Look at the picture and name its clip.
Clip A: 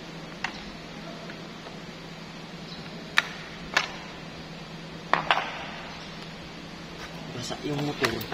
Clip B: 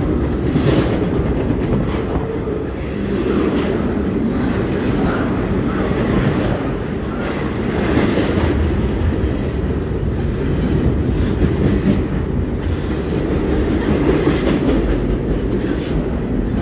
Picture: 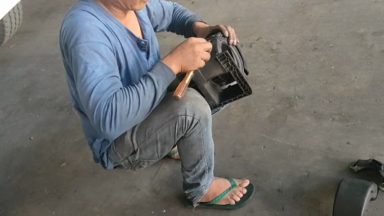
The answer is A